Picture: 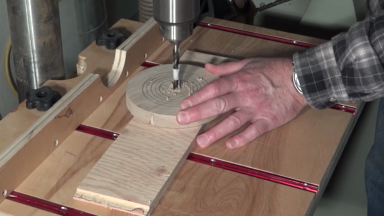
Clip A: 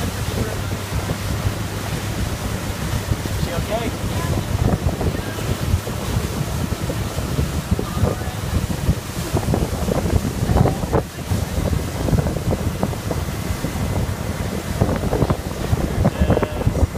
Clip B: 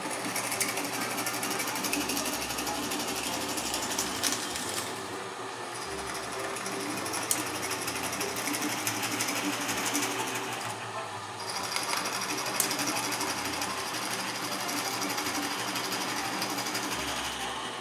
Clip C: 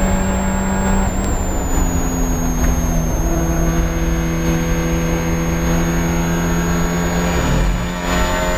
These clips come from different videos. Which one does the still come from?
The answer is B